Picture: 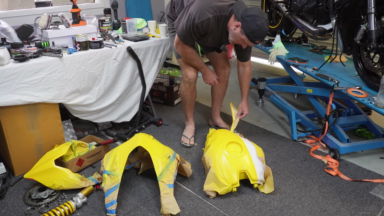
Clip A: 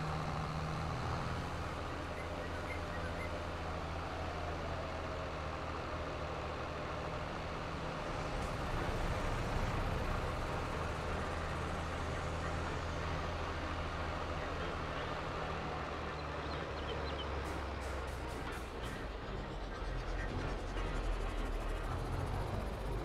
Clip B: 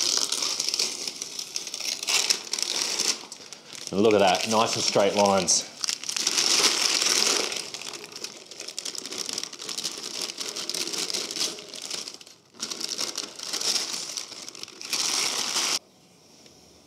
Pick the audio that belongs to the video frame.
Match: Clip B